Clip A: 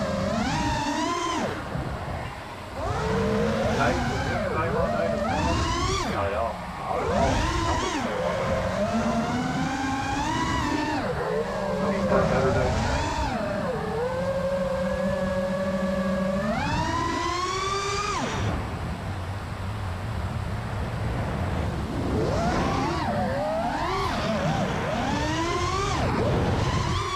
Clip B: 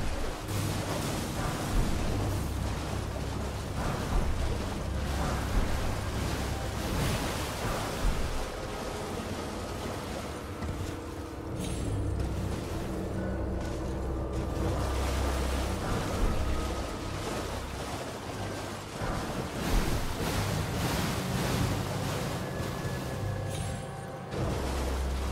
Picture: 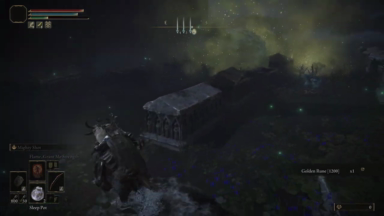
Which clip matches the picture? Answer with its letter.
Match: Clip B